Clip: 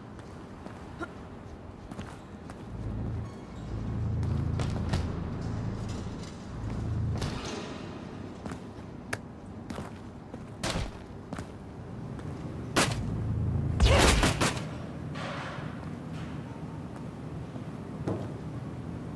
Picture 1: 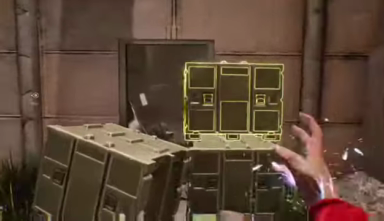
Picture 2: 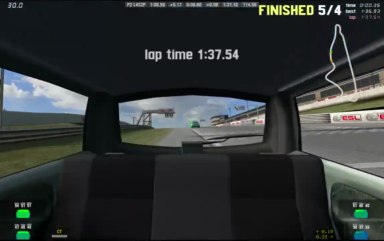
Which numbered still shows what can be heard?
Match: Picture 1